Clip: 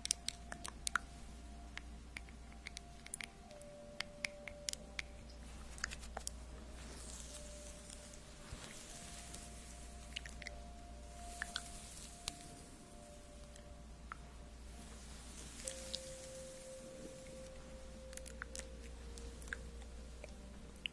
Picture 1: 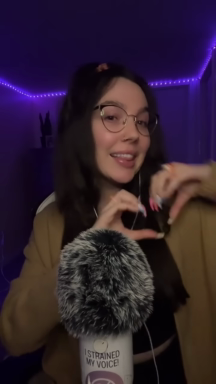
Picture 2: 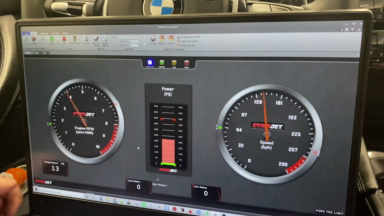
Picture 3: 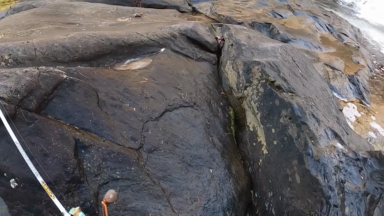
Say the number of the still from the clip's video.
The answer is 1